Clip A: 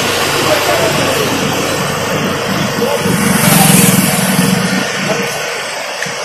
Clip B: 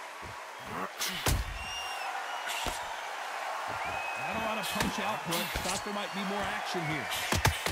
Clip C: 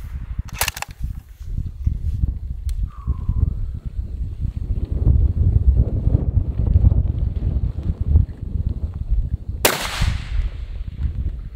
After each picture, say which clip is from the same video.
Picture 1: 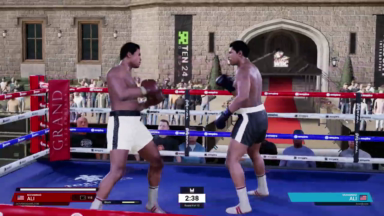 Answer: B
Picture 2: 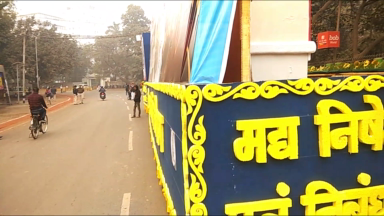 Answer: A